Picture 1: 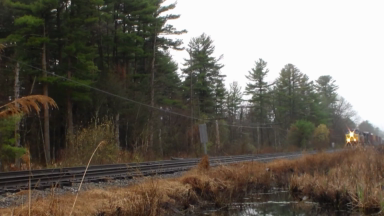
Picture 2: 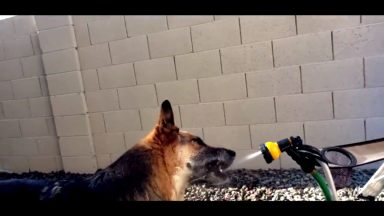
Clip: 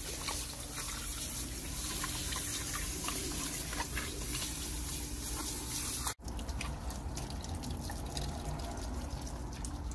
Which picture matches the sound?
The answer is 2